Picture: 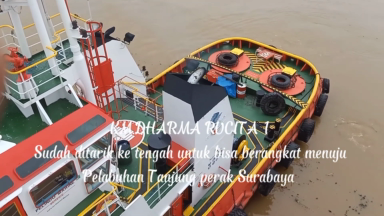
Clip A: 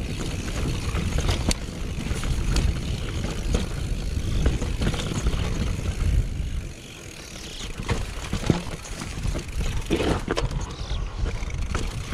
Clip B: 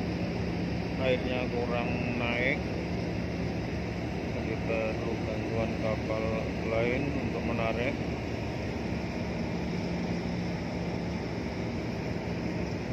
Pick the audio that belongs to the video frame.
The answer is B